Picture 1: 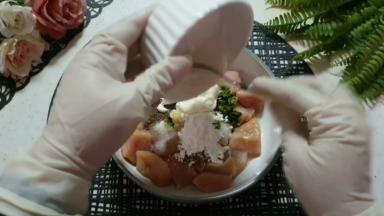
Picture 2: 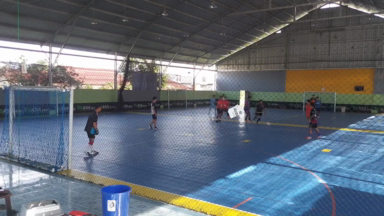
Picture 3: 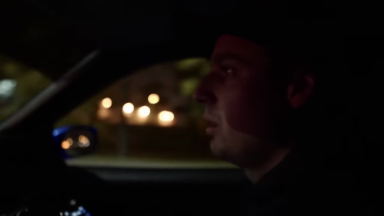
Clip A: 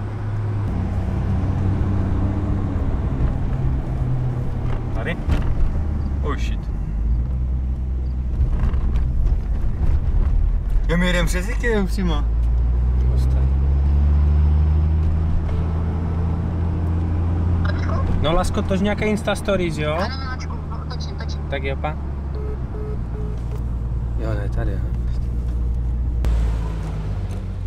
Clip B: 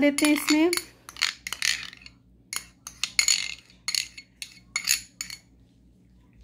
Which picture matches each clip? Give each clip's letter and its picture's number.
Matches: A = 3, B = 1